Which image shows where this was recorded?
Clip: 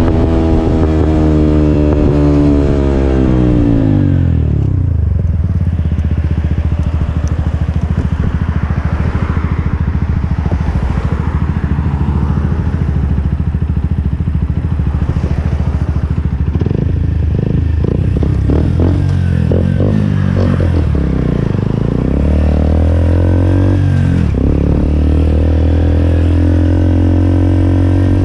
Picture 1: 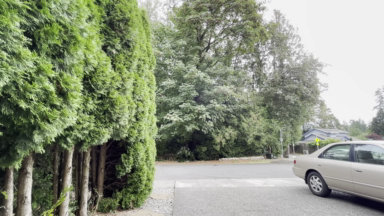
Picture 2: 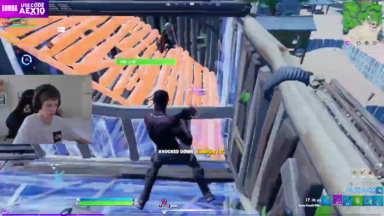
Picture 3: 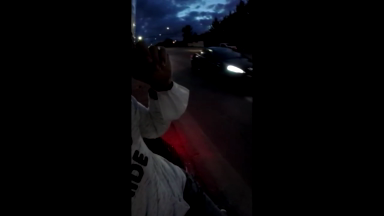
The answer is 3